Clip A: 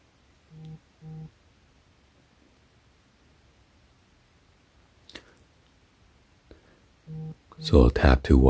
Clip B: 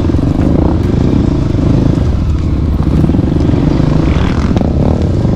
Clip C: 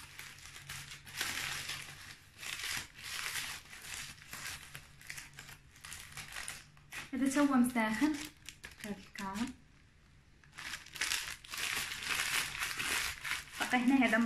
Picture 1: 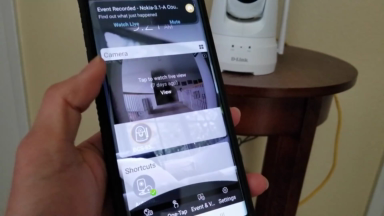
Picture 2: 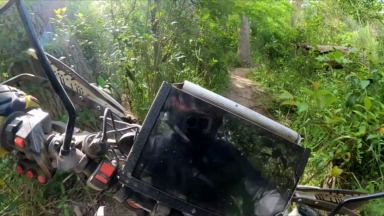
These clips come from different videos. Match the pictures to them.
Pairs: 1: A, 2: B